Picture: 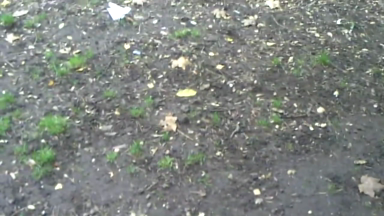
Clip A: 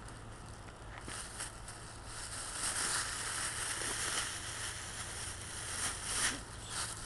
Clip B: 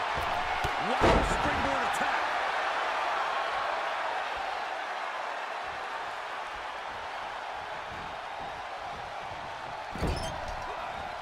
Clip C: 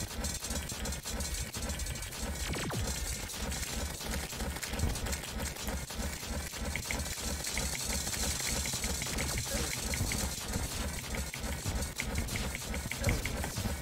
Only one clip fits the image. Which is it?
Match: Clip A